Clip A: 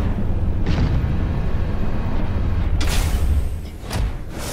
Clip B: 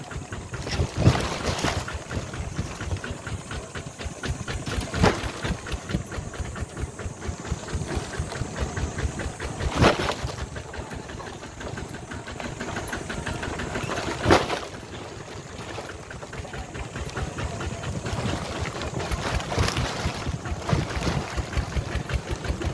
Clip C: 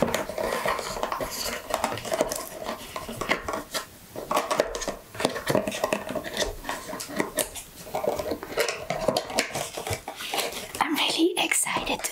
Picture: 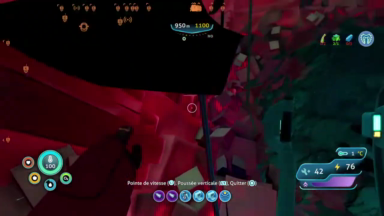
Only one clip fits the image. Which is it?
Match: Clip A